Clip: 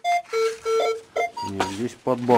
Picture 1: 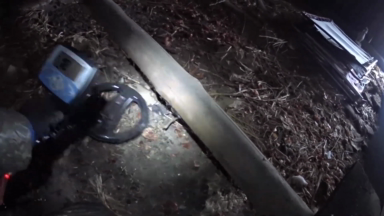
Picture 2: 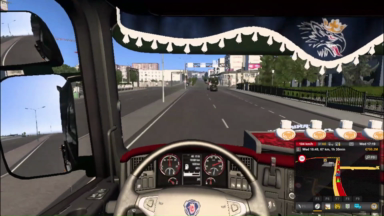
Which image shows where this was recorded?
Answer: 1